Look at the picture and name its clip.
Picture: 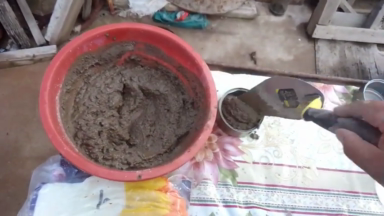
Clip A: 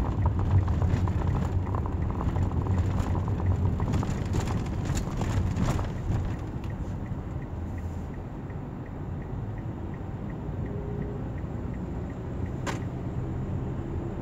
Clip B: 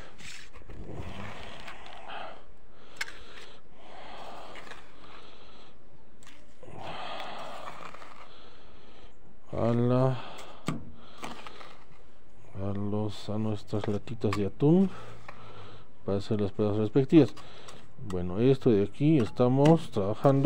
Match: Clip B